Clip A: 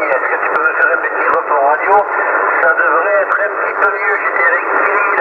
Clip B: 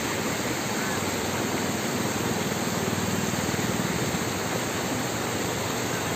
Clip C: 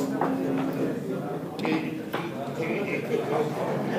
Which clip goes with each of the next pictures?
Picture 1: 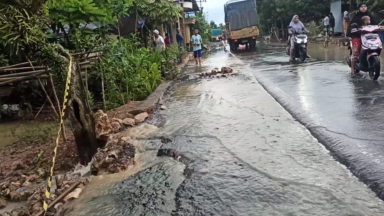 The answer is B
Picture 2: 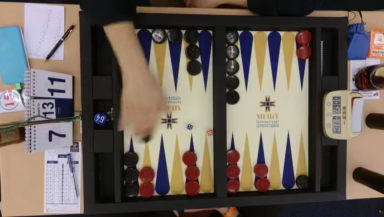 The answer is C